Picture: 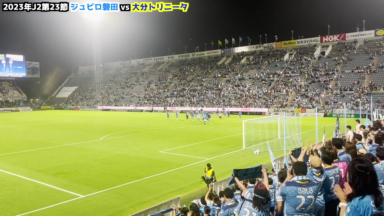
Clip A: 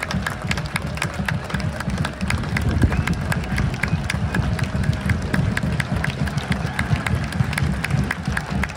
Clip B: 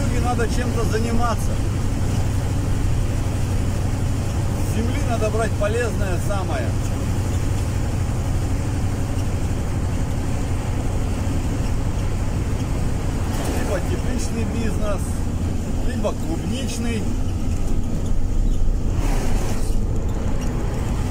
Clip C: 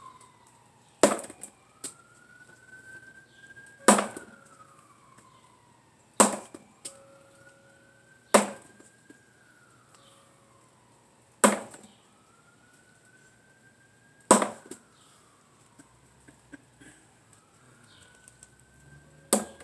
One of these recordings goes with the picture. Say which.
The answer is A